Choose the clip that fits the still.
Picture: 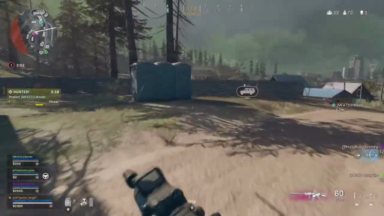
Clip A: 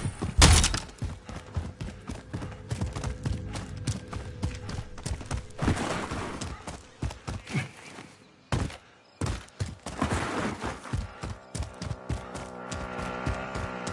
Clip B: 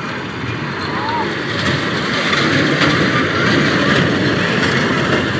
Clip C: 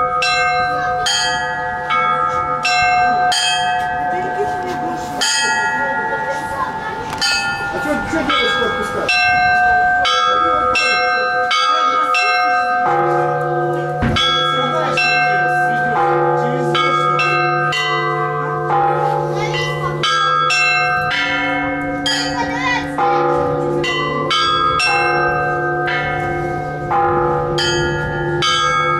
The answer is A